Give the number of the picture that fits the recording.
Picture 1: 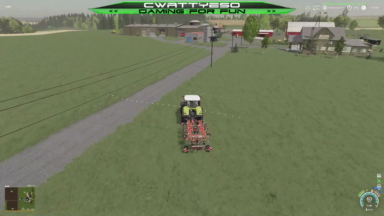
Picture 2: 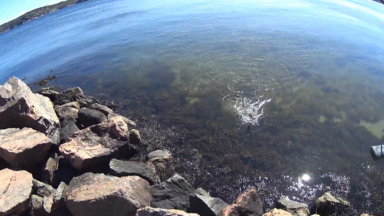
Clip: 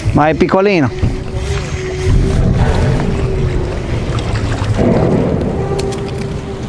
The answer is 2